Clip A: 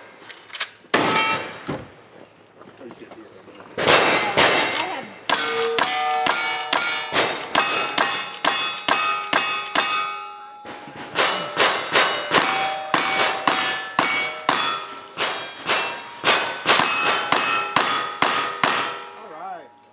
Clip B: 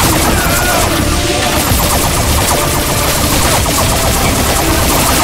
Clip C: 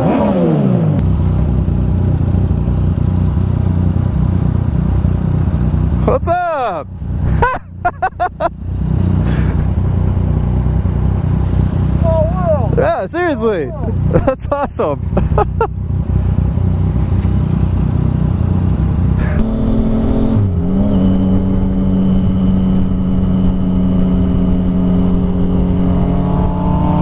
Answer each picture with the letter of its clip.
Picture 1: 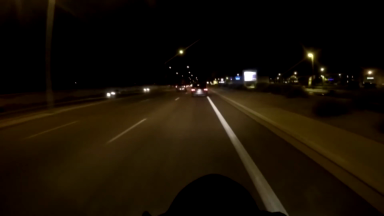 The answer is C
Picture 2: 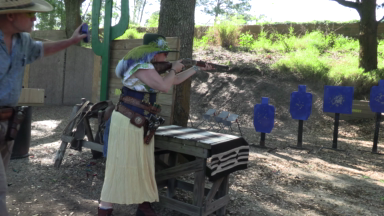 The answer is A